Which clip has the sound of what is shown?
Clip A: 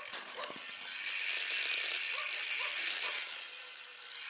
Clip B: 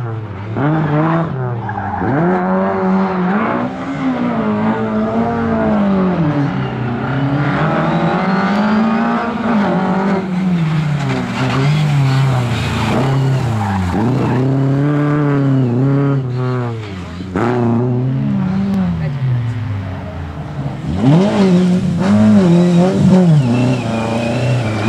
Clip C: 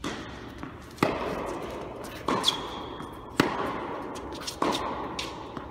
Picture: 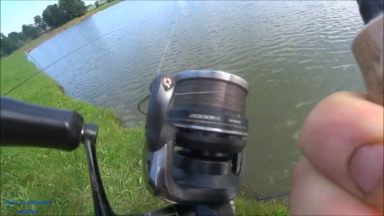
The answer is A